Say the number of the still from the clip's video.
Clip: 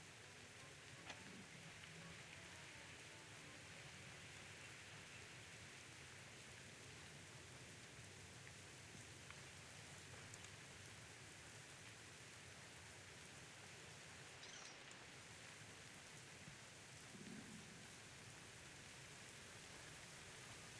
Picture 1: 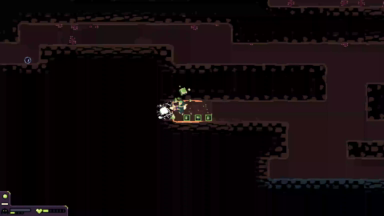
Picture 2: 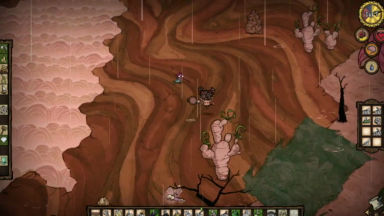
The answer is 2